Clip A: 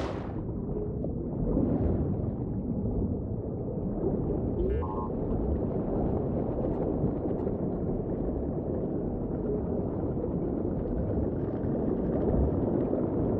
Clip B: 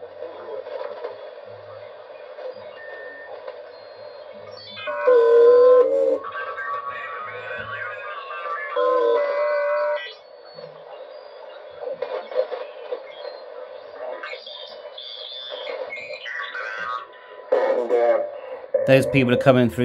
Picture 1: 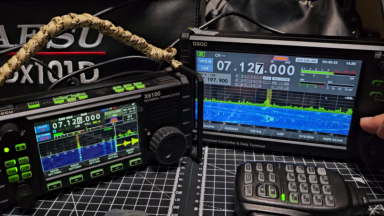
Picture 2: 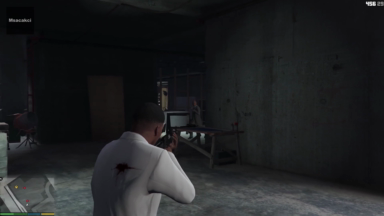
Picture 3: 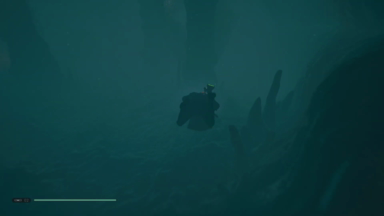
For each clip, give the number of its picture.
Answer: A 3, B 1